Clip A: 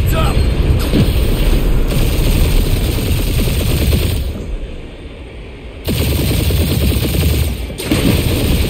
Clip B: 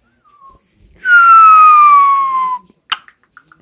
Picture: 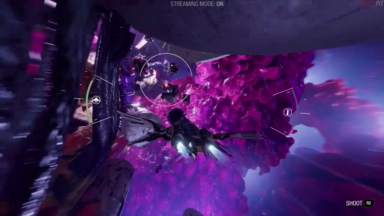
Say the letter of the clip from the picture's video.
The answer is A